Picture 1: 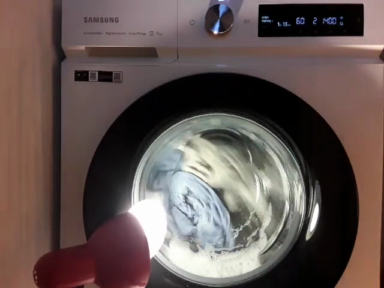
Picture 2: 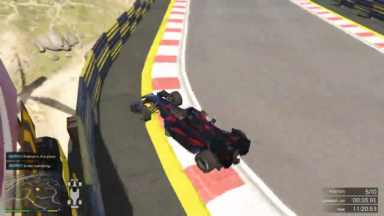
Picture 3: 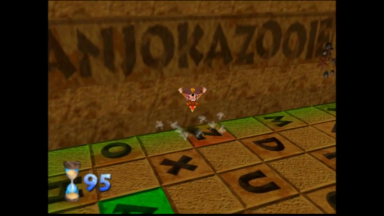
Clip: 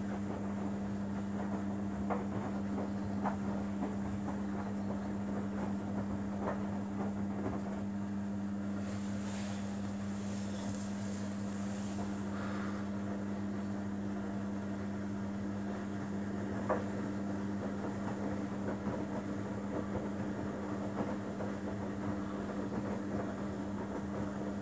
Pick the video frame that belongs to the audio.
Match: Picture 1